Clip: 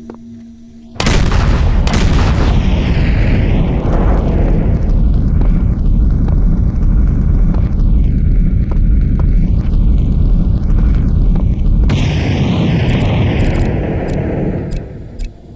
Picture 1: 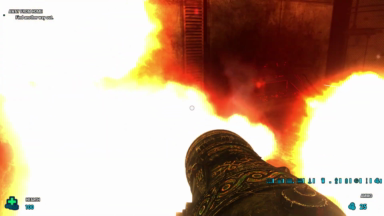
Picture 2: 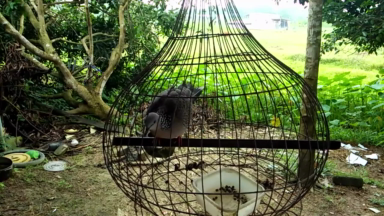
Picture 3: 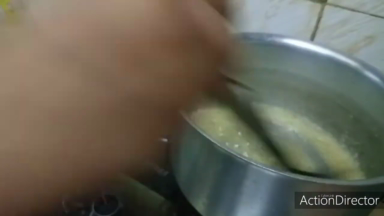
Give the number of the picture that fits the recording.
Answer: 1